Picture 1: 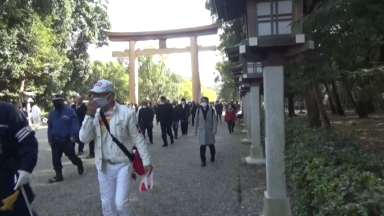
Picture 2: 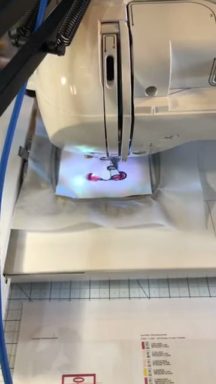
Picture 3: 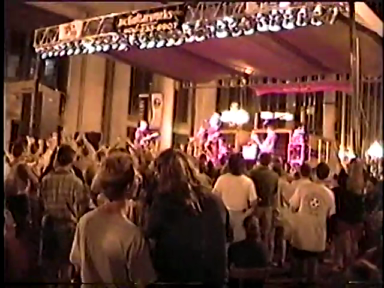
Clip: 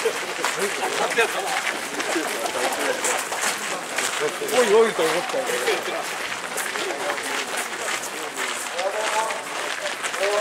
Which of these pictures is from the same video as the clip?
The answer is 1